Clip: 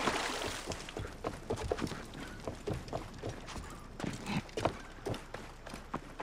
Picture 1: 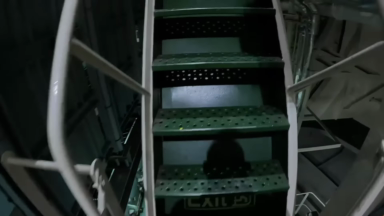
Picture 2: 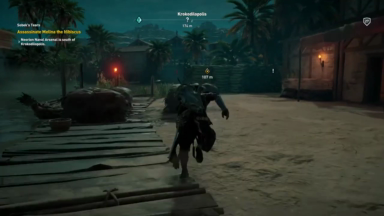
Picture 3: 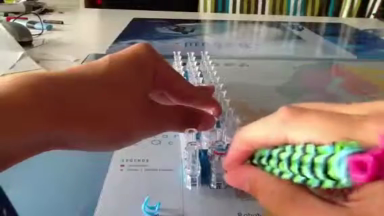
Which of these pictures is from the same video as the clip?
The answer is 2